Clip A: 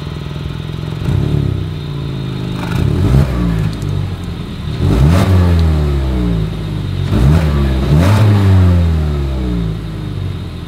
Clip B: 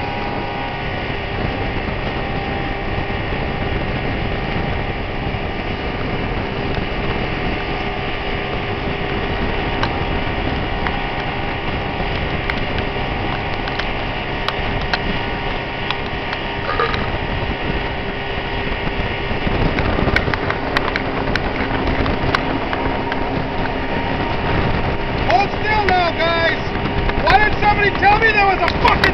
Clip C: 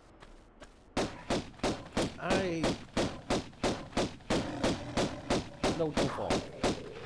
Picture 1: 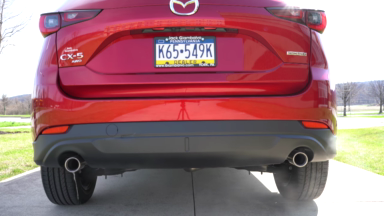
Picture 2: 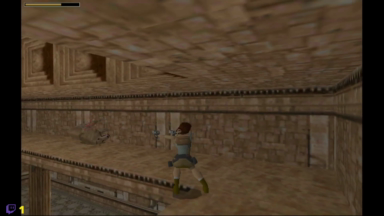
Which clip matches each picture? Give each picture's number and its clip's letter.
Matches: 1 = A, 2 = C